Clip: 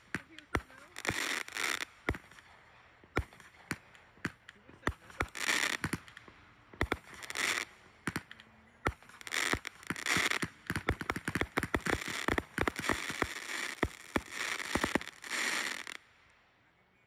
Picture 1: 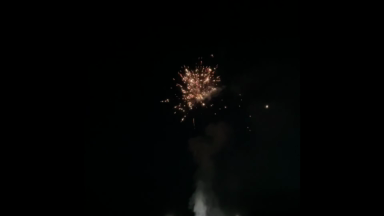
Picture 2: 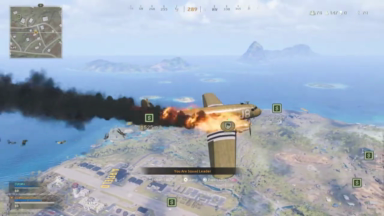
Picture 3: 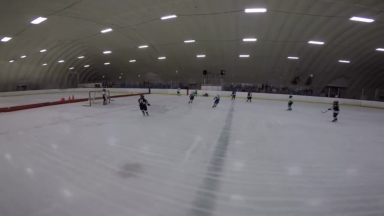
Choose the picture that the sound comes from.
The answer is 1